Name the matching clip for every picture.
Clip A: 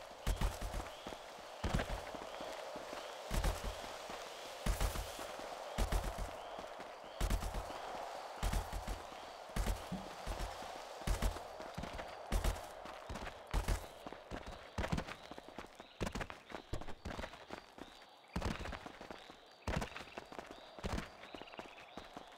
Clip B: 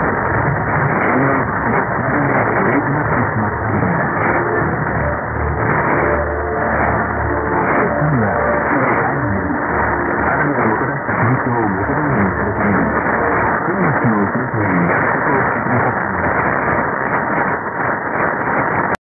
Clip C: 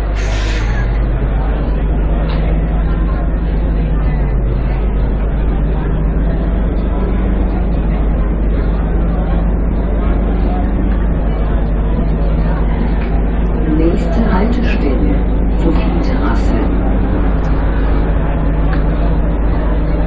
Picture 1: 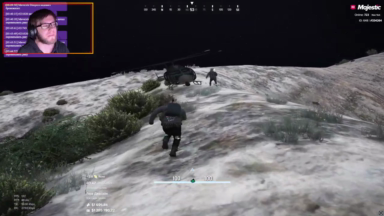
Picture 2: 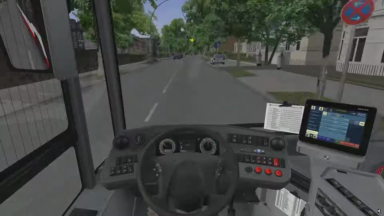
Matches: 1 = A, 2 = C